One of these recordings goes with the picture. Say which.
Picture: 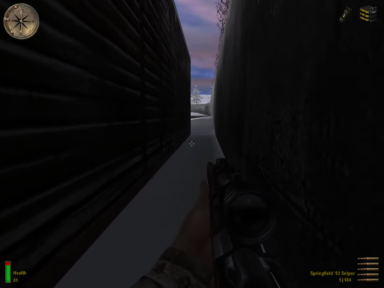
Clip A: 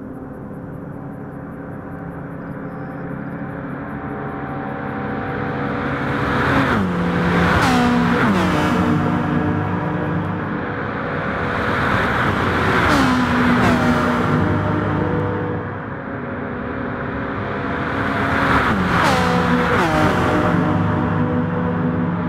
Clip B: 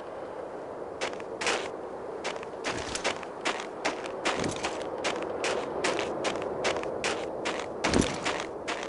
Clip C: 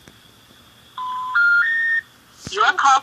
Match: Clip B